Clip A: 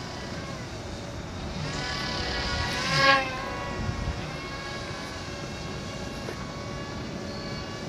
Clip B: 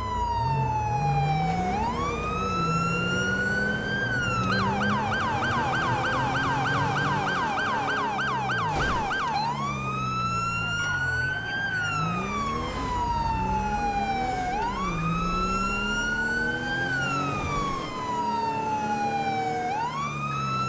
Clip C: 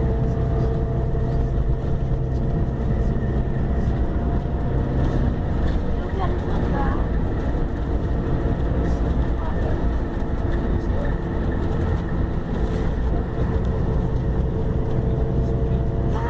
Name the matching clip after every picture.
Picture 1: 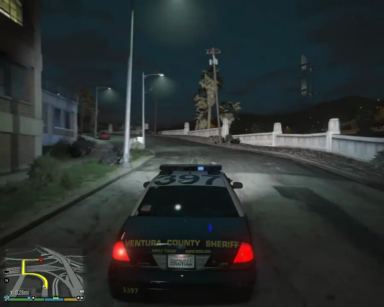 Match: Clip B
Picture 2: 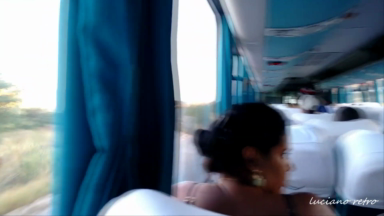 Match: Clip C